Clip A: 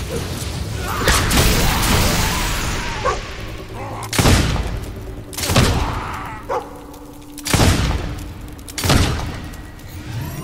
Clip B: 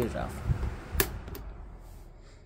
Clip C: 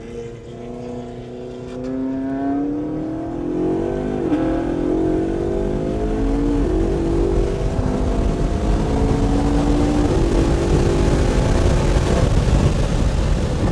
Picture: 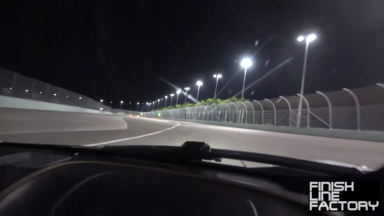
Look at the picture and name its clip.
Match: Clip C